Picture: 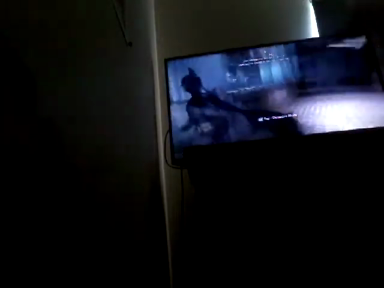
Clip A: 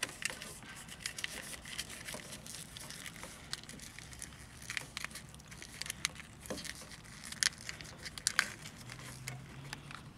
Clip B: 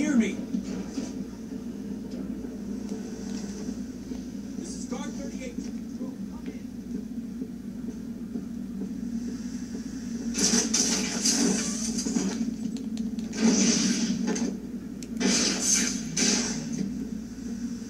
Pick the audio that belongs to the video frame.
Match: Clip B